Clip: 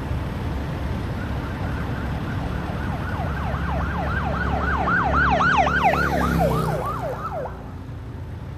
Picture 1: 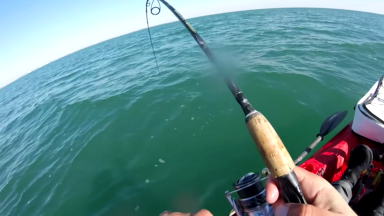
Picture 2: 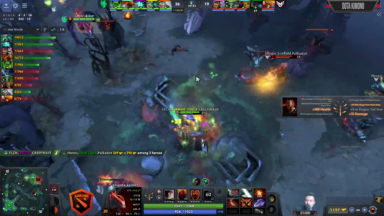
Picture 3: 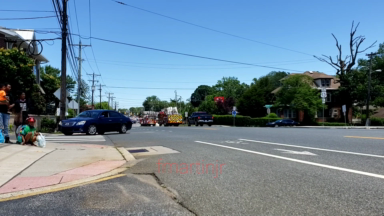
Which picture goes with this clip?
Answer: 3